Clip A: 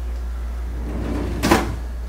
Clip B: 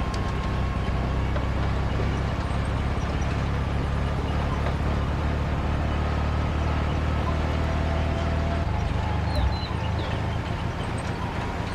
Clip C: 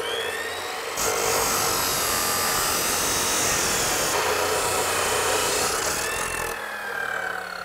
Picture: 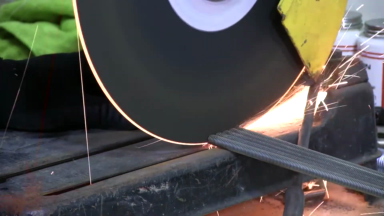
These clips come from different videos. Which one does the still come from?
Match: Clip C